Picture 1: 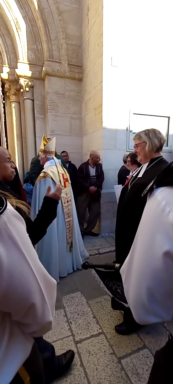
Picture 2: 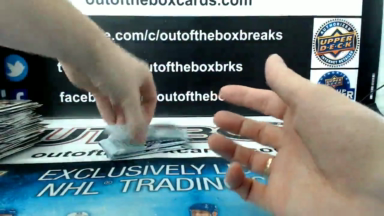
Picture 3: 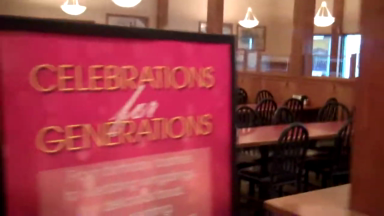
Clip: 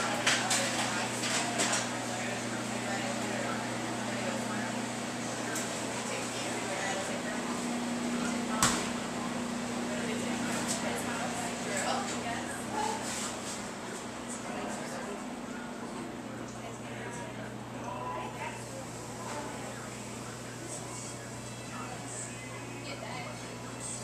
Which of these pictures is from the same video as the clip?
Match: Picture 3